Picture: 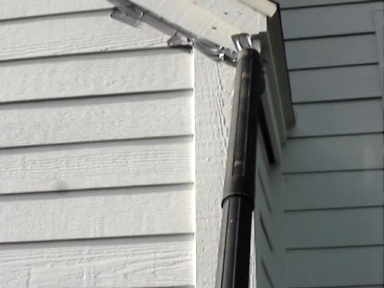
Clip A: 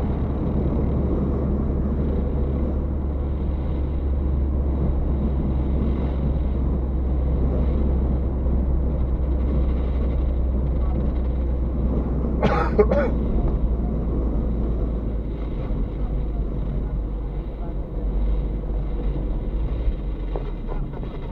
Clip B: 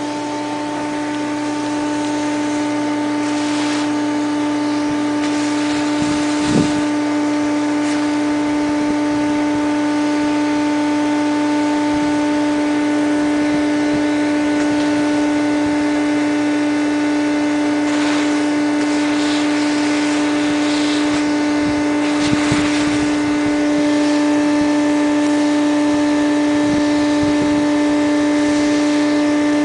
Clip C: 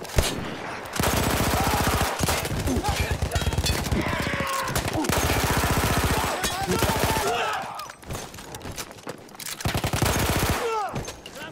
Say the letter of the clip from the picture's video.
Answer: B